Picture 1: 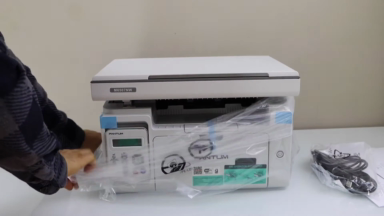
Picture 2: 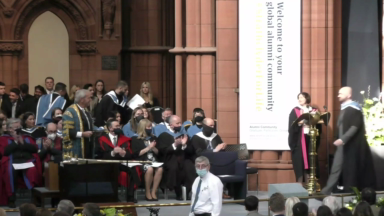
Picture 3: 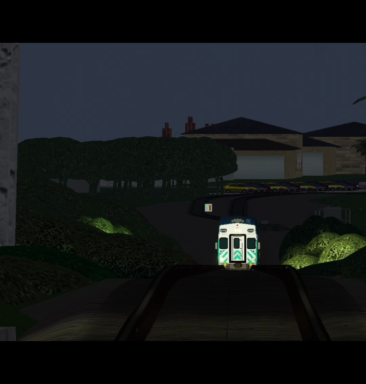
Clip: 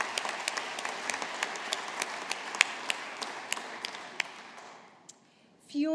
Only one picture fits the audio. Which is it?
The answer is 2